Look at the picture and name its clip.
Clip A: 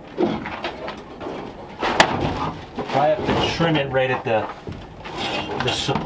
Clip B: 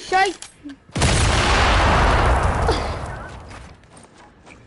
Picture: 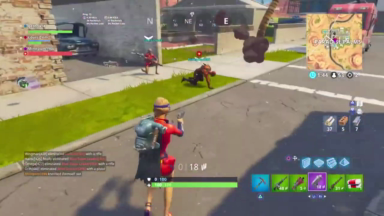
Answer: B